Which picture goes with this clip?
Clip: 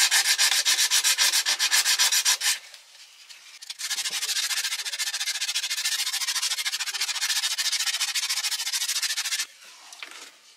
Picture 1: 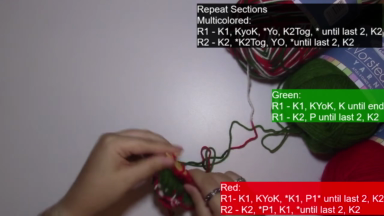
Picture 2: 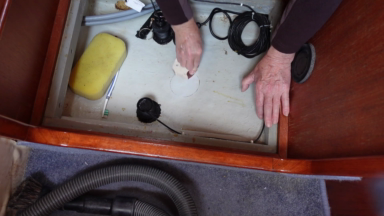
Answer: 2